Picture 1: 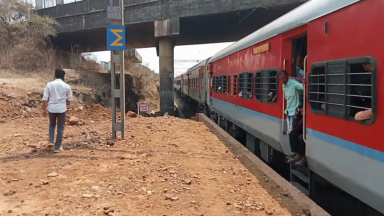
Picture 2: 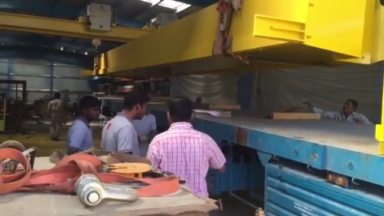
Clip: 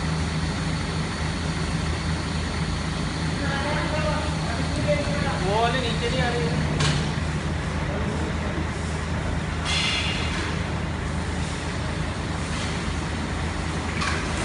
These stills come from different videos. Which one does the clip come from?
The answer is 2